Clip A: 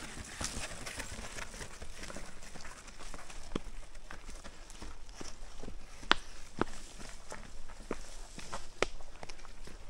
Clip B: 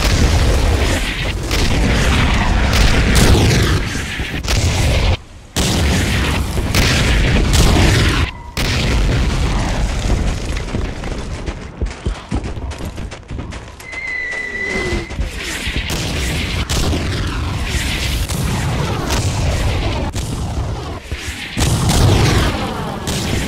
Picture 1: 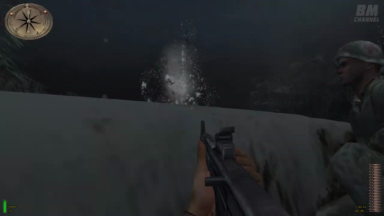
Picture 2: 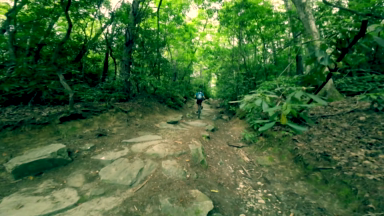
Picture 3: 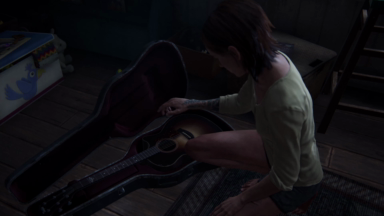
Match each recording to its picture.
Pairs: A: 2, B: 1